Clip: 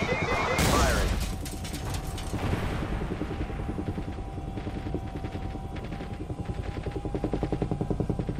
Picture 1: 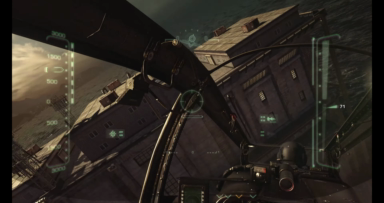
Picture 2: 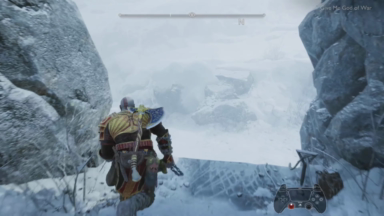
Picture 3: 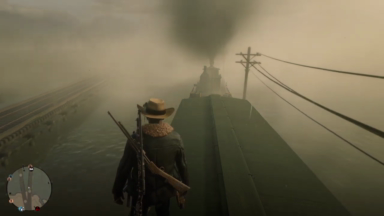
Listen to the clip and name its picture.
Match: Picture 1